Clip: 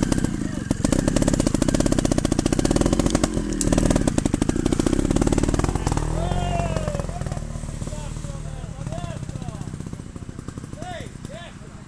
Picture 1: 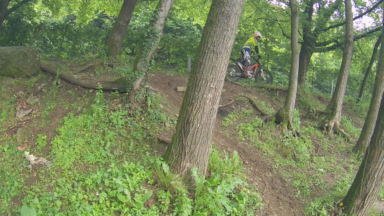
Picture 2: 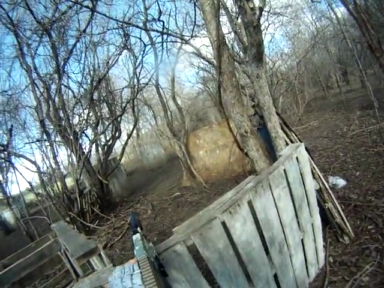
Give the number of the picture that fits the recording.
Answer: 1